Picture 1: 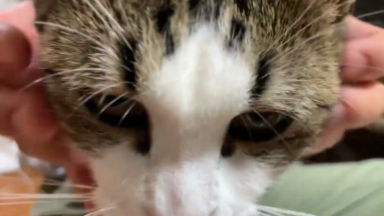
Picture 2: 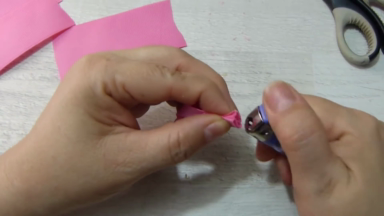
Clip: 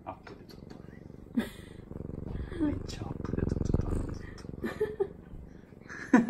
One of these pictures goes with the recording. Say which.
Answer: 1